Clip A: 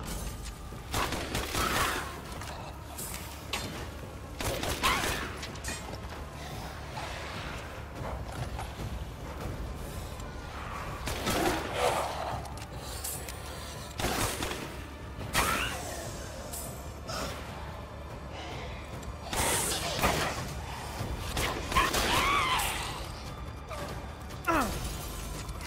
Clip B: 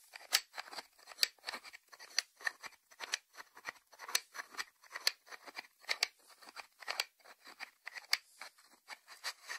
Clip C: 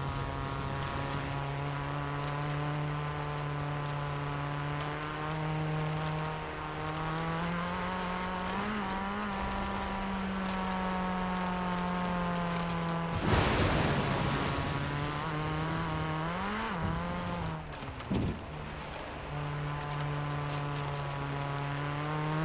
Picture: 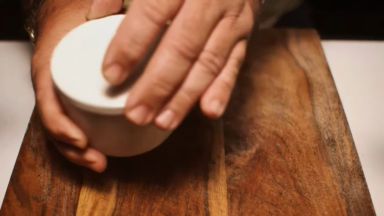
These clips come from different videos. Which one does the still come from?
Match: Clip B